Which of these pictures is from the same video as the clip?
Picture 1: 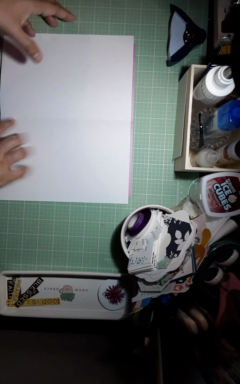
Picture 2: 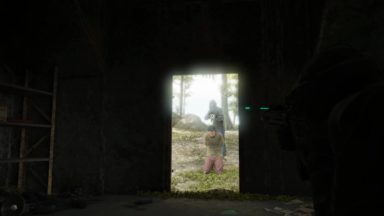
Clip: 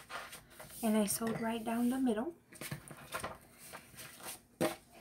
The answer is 1